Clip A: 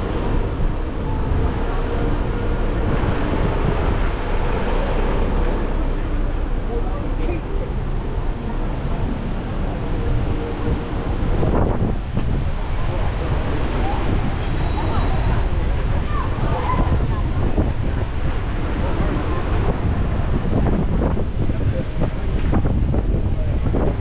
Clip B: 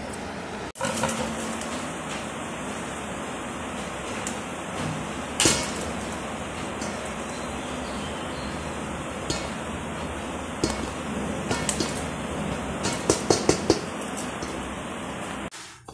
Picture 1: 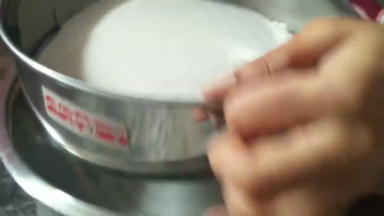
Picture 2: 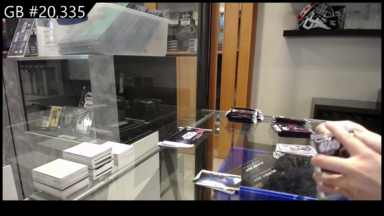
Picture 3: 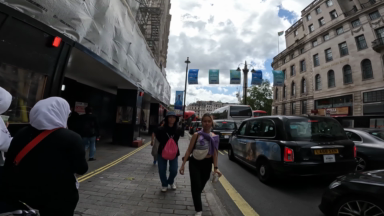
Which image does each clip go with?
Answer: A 3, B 1